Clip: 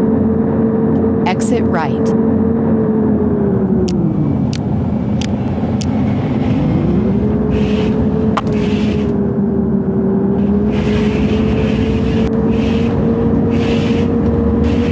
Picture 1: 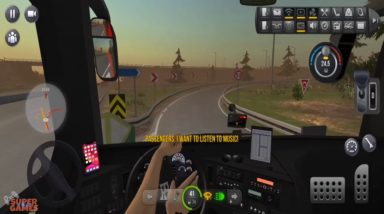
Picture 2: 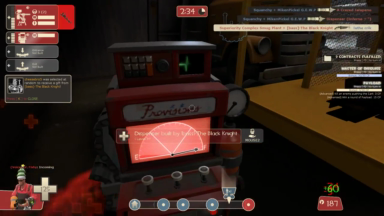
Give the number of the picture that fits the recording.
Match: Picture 1